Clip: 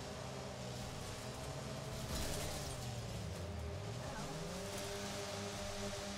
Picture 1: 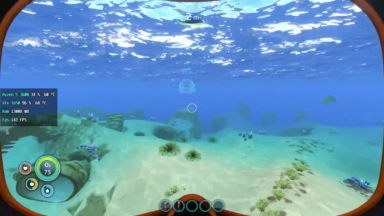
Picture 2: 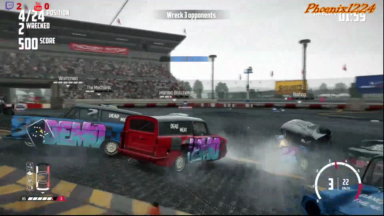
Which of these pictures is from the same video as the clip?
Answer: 2